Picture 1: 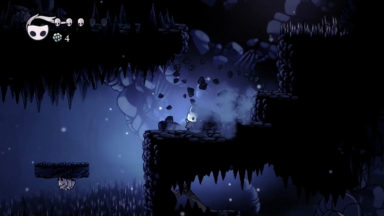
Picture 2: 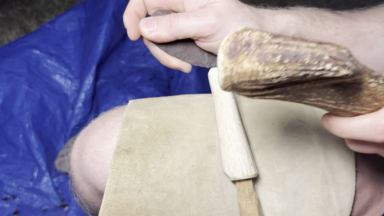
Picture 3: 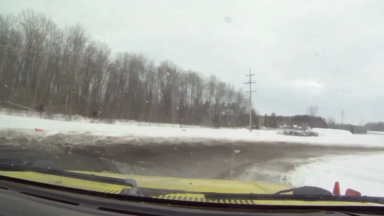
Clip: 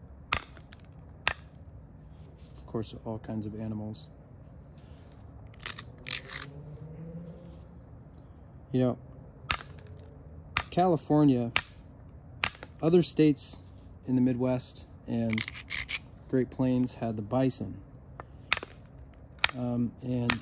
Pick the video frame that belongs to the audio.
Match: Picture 2